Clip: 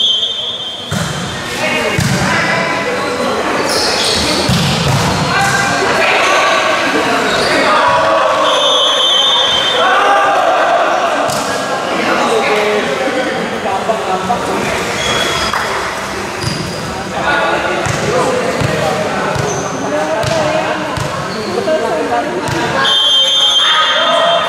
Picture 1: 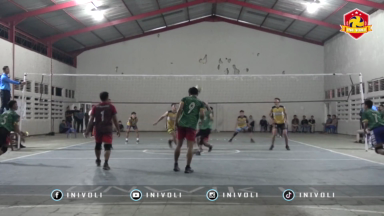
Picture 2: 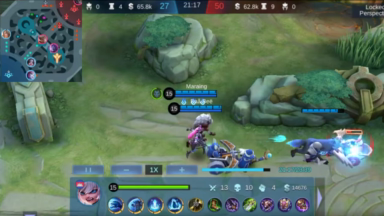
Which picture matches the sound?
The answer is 1